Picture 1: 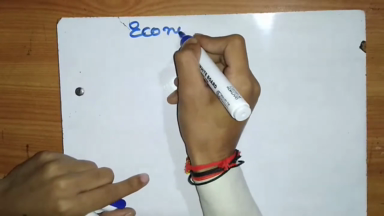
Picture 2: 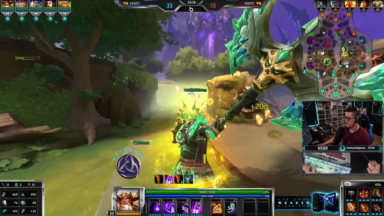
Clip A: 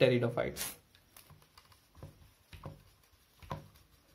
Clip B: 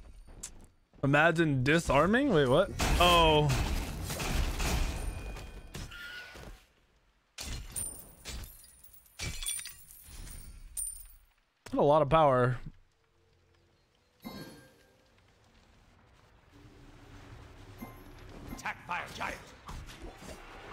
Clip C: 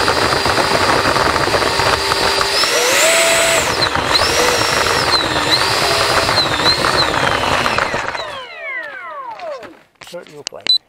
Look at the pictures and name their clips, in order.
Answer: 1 A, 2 B